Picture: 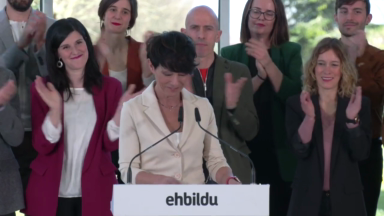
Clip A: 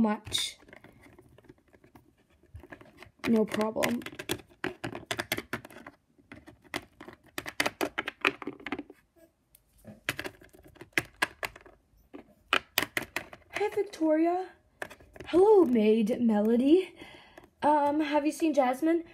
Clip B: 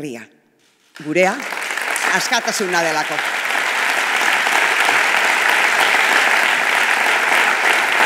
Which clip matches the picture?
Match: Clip B